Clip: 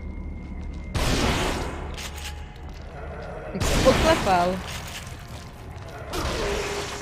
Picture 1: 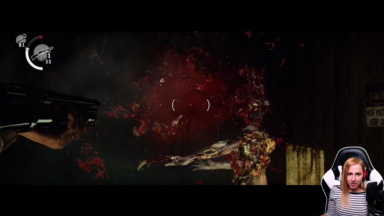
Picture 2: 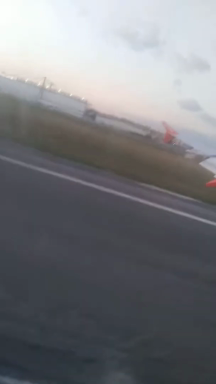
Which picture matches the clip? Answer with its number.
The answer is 1